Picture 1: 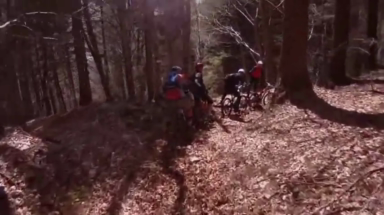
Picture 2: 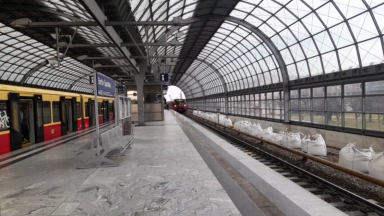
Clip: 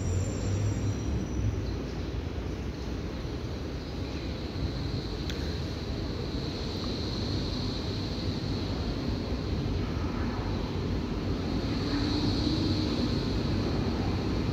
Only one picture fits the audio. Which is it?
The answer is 2